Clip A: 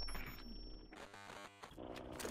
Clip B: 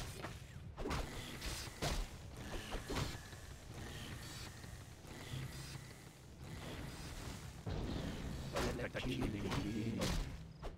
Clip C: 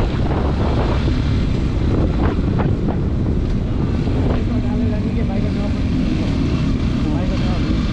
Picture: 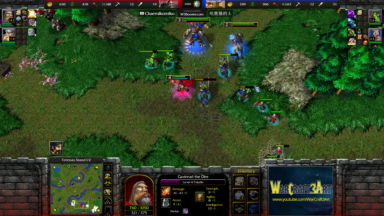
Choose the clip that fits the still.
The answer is B